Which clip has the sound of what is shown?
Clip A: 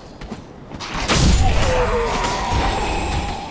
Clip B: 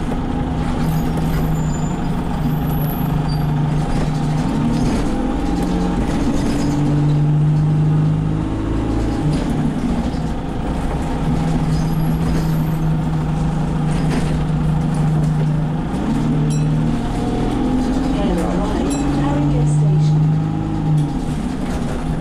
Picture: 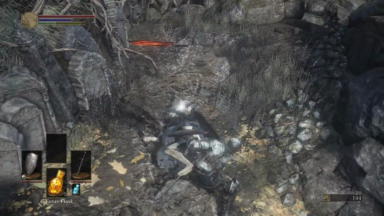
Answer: A